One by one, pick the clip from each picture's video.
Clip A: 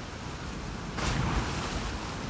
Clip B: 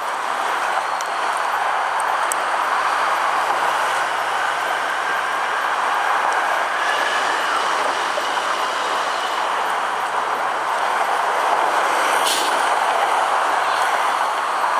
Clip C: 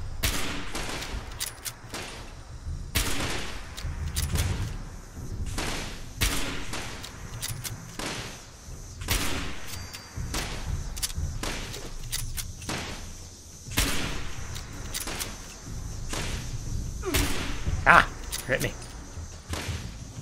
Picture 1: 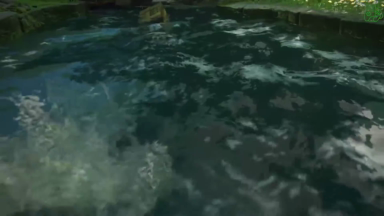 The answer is A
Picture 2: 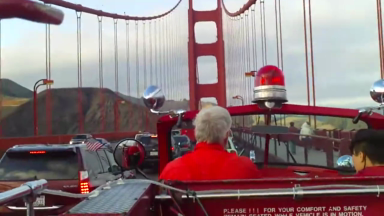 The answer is B